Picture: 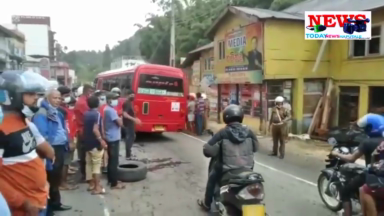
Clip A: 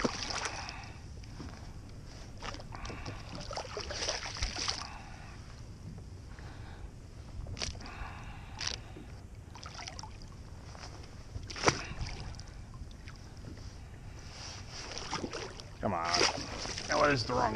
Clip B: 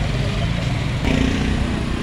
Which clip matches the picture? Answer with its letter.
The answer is B